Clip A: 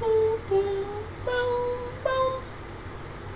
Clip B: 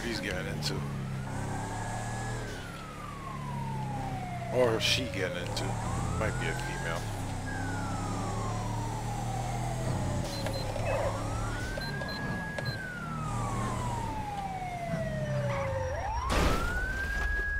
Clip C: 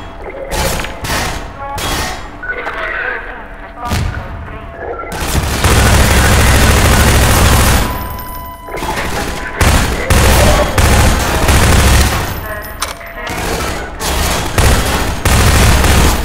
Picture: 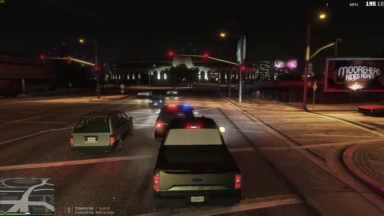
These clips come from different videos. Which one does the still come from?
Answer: B